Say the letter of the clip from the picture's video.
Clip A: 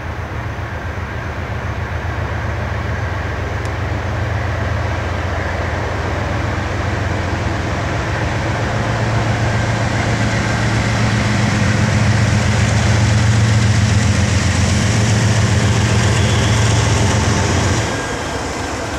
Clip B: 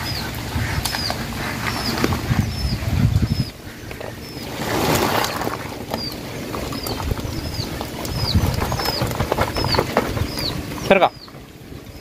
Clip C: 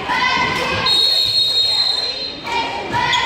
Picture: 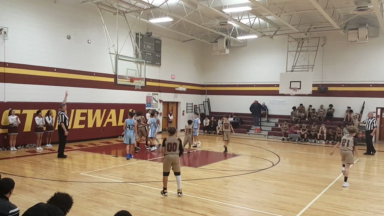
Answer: C